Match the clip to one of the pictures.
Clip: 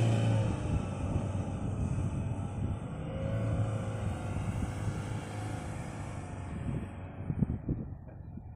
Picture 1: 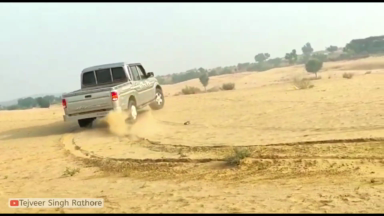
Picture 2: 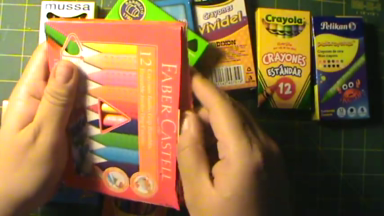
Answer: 1